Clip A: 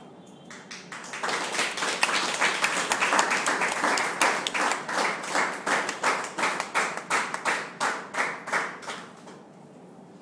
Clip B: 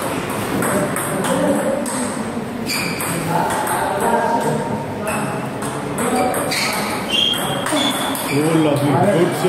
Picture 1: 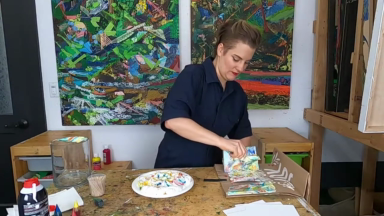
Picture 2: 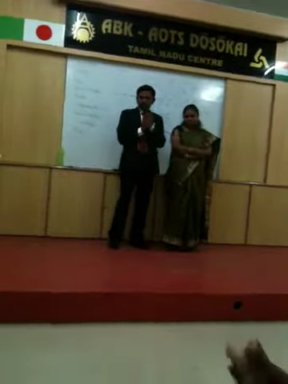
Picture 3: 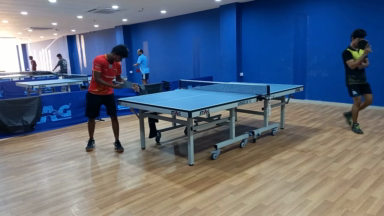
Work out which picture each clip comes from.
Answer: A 2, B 3